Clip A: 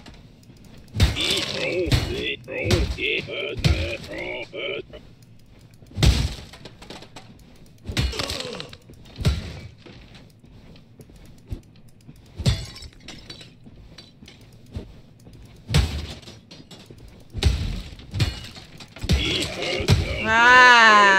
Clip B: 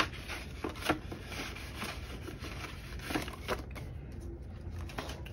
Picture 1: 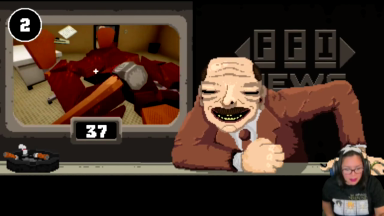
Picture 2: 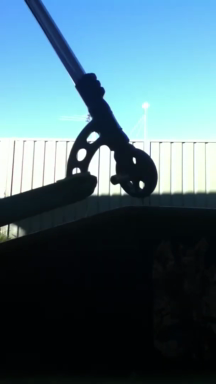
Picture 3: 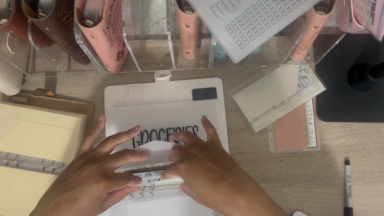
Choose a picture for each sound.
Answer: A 1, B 3